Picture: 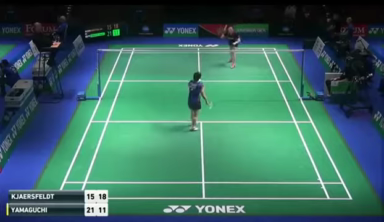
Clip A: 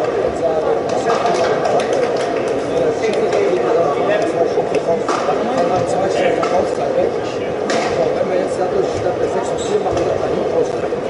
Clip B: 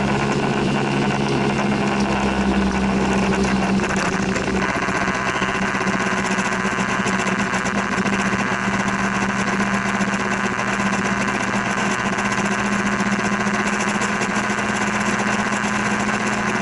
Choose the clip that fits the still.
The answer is A